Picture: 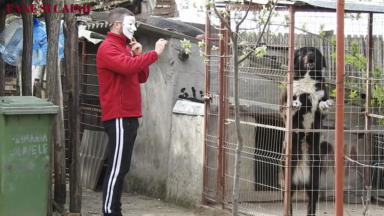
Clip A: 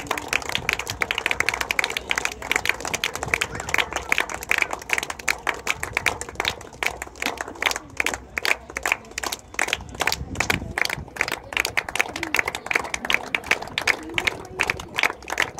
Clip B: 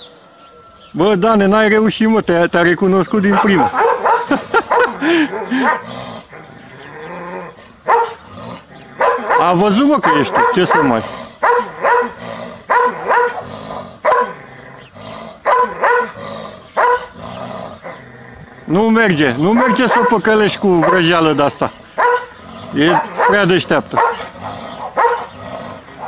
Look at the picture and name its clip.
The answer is B